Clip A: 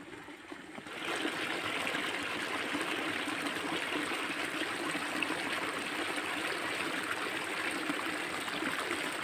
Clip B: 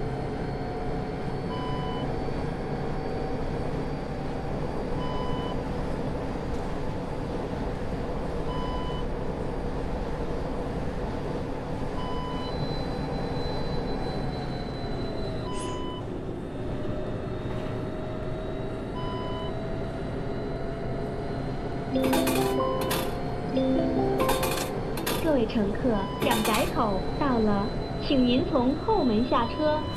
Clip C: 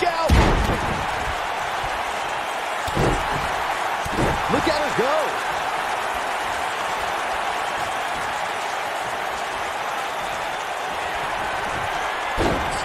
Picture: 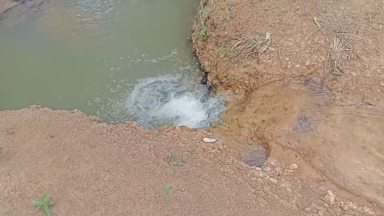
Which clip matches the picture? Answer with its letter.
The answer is A